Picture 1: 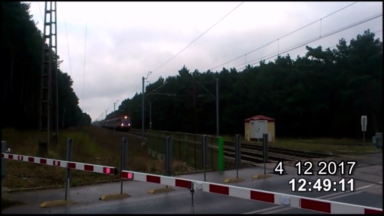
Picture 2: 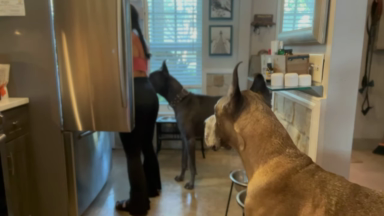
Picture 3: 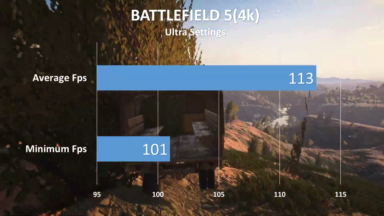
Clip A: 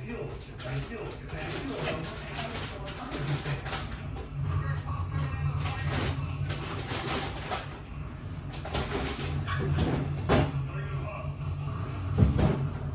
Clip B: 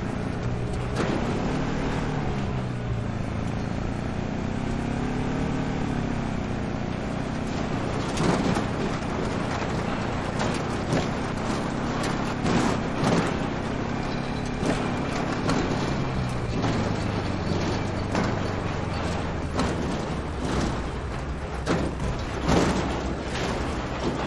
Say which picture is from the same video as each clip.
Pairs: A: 2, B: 3